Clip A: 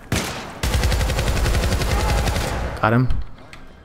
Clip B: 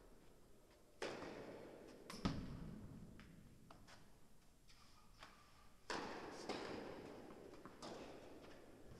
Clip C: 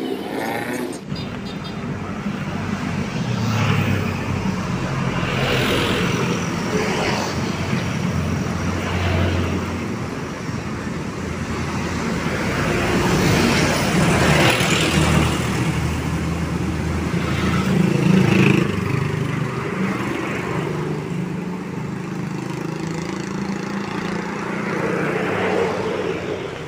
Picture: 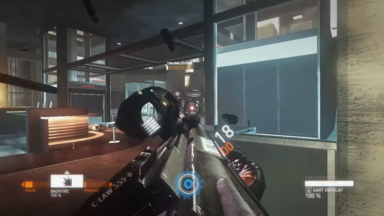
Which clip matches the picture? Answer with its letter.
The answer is A